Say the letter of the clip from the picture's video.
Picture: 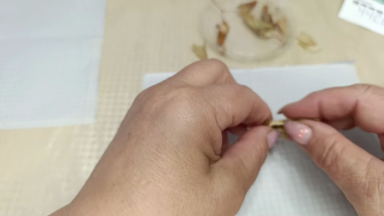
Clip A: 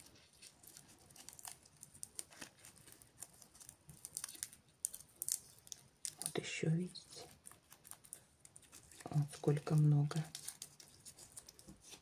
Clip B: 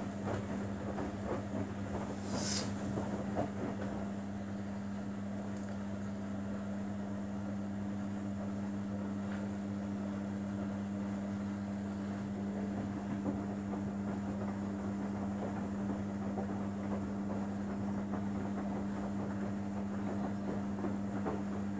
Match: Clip A